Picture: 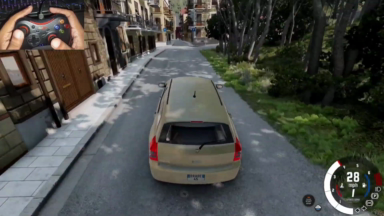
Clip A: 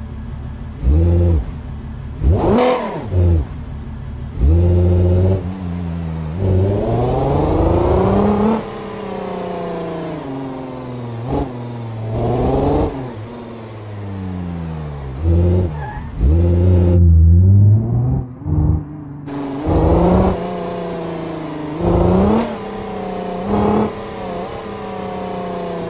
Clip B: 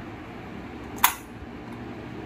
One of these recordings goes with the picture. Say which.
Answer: A